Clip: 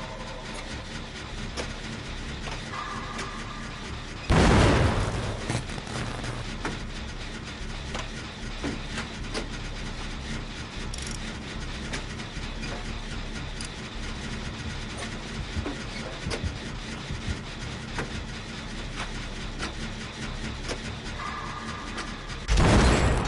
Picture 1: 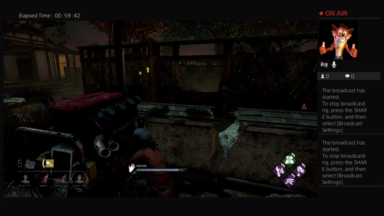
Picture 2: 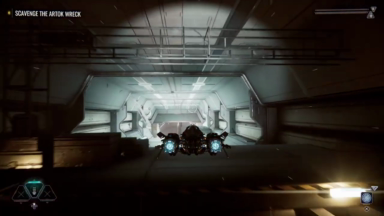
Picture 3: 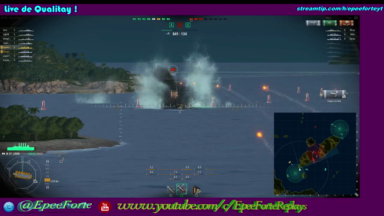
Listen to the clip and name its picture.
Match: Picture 1